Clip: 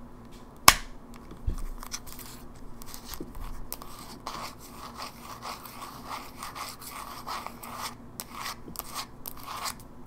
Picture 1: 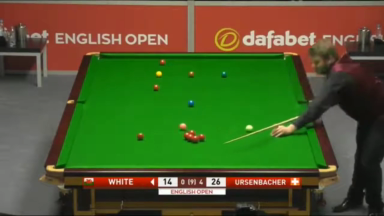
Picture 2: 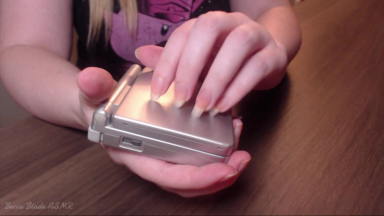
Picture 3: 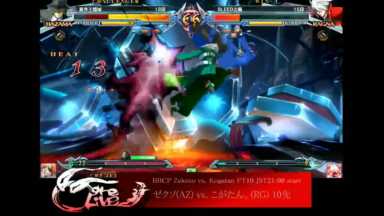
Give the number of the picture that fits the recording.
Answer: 2